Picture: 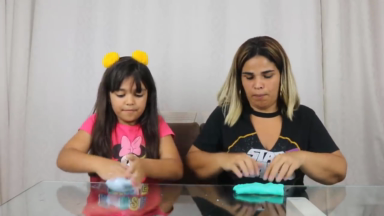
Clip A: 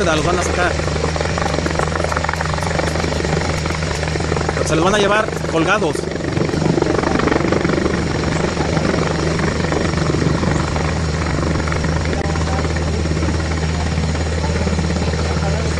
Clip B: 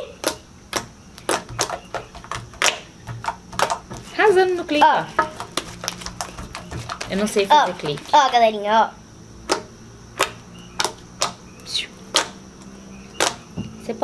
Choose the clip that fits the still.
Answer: B